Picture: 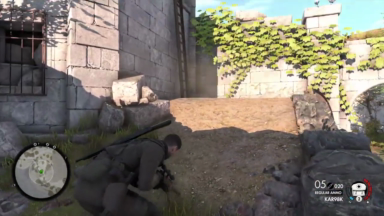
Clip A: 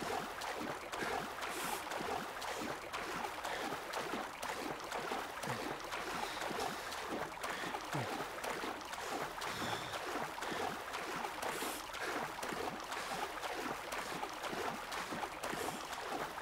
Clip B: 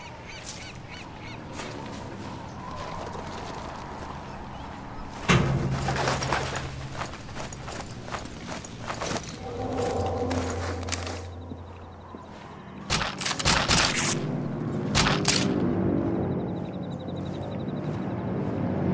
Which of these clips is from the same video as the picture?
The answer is B